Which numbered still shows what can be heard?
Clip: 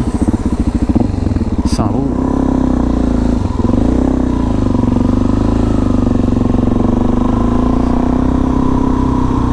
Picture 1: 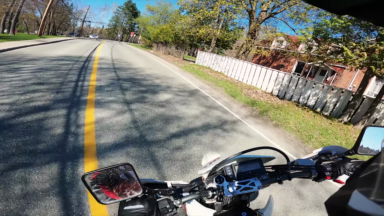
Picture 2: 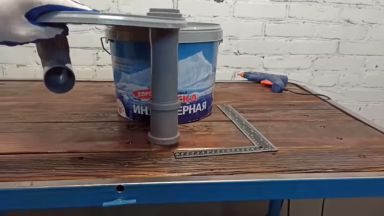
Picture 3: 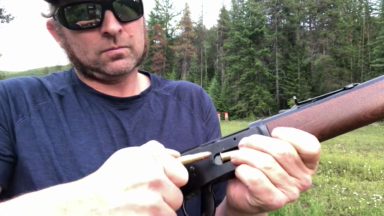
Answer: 1